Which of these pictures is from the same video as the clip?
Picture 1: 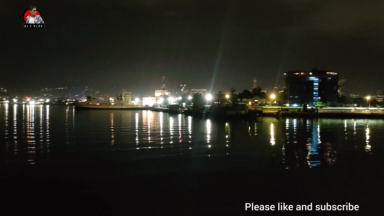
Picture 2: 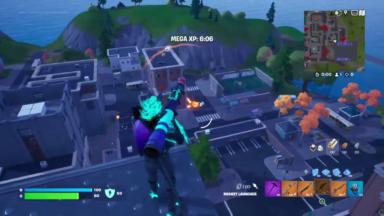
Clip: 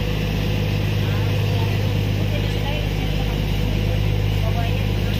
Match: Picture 1